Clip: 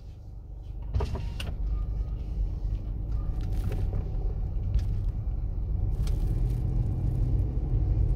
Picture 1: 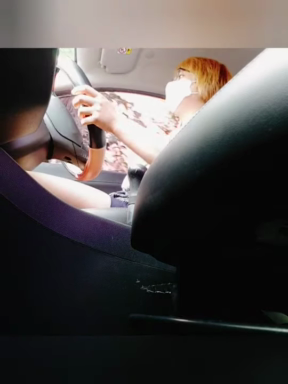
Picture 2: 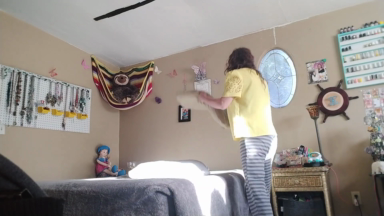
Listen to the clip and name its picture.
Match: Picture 1